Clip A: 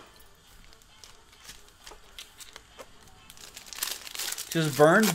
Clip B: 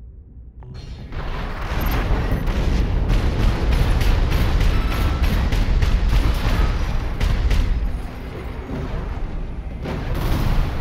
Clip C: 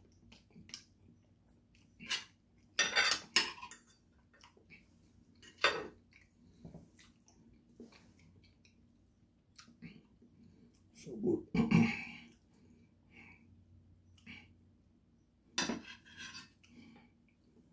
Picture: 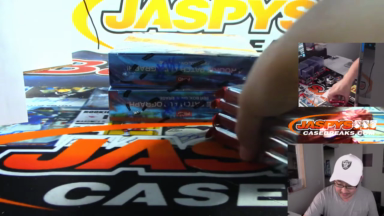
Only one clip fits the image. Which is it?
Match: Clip A